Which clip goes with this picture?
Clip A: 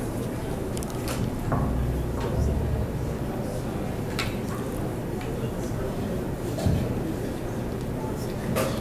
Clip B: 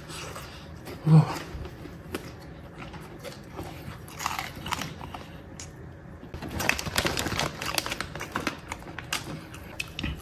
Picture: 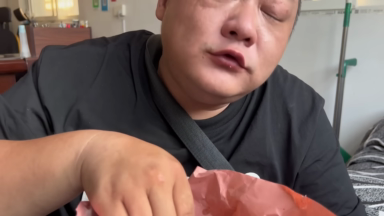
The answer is B